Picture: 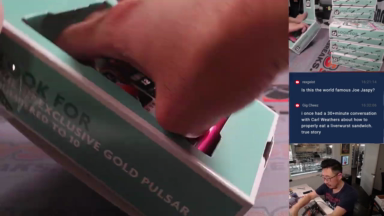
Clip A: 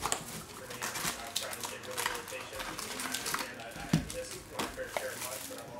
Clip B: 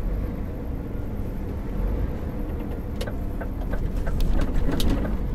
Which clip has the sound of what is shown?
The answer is A